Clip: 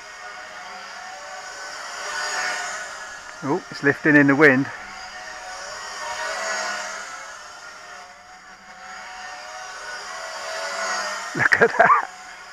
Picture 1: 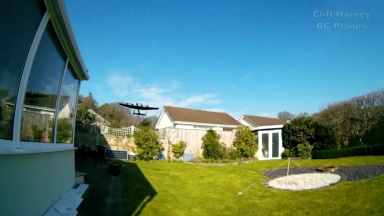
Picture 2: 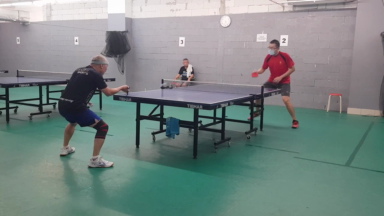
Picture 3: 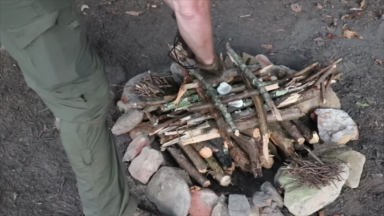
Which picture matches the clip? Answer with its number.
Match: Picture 1